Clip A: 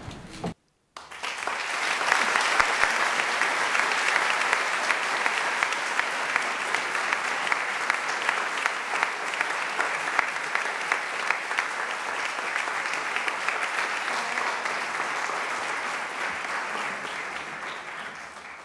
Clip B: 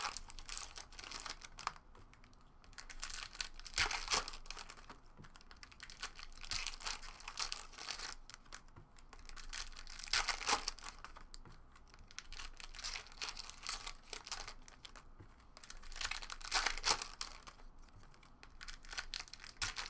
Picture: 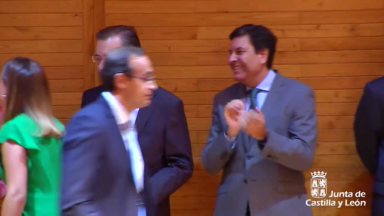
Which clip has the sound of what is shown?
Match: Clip A